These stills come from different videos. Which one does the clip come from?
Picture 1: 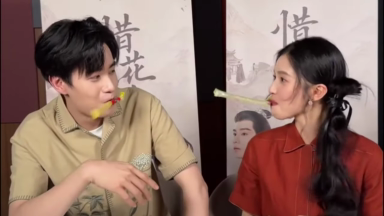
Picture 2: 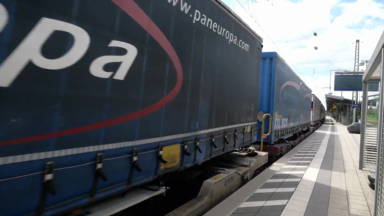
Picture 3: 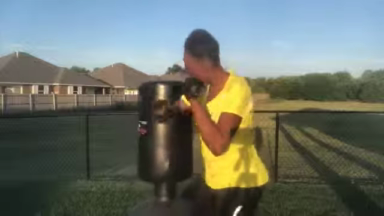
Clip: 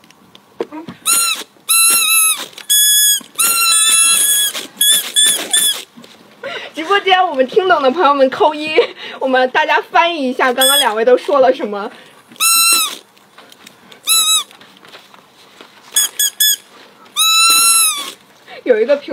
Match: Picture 1